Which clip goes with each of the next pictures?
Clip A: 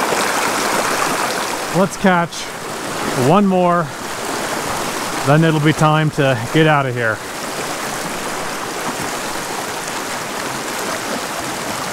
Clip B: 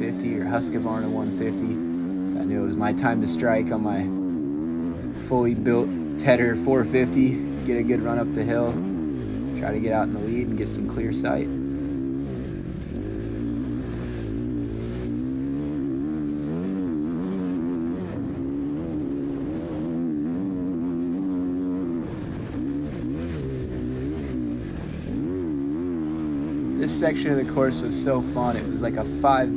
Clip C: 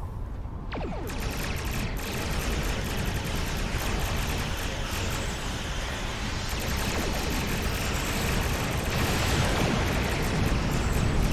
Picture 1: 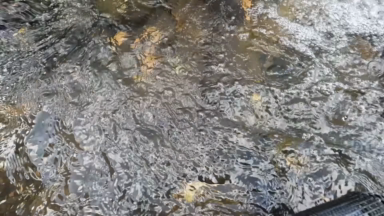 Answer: A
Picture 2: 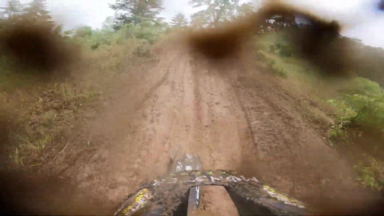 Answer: B